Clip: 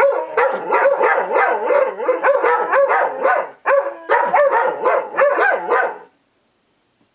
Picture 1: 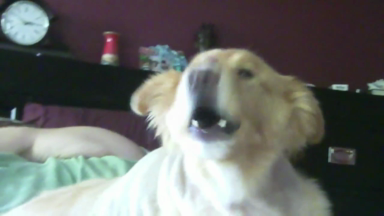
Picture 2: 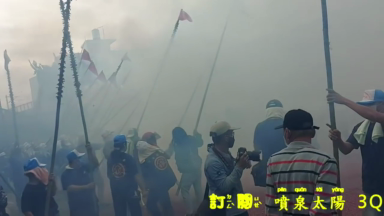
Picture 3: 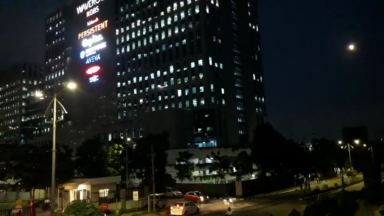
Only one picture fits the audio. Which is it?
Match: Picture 1